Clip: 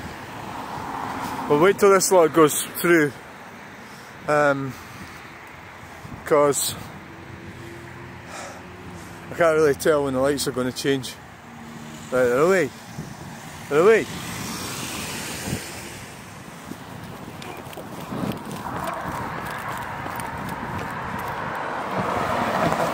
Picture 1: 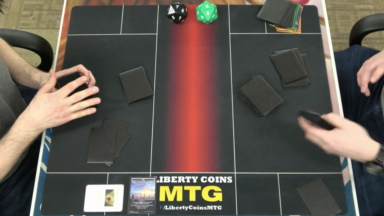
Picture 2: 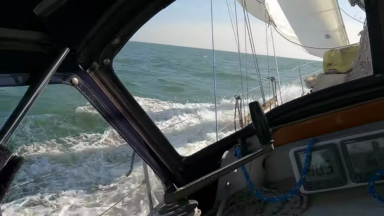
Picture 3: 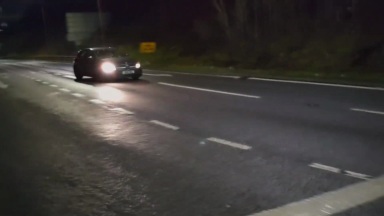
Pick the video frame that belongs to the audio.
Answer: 3